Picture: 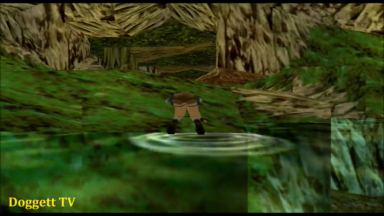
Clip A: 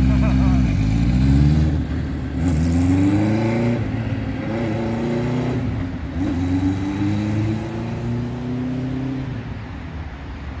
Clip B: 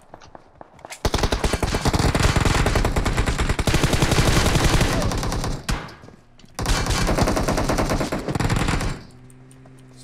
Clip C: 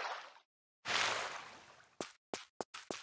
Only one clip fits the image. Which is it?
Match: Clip C